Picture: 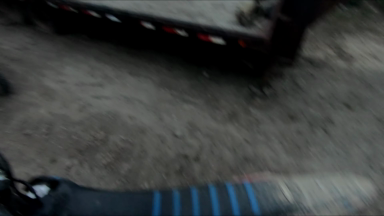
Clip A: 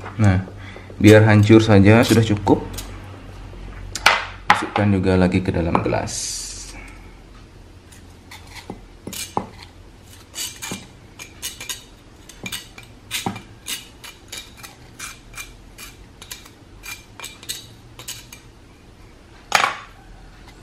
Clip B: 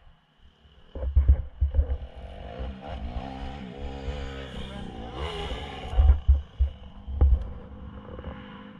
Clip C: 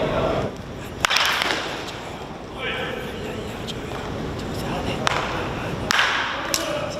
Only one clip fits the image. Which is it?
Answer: B